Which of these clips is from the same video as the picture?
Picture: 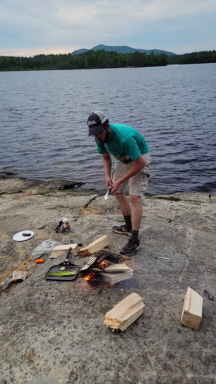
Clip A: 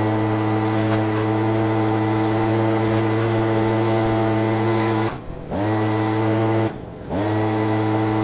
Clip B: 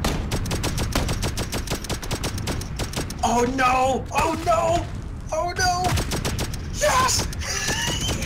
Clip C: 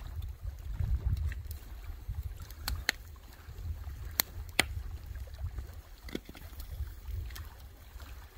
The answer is C